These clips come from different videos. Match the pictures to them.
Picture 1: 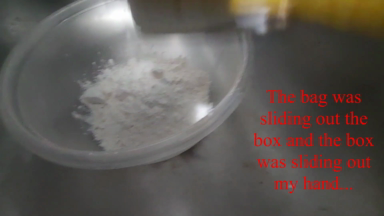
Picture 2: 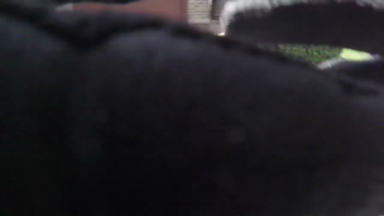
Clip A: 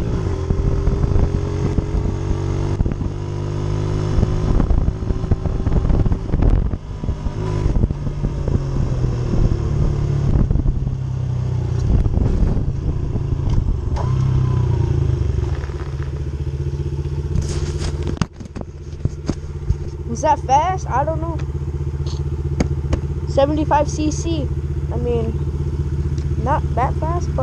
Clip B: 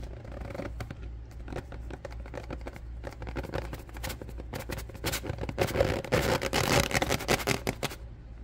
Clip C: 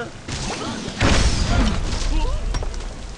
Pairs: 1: B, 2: A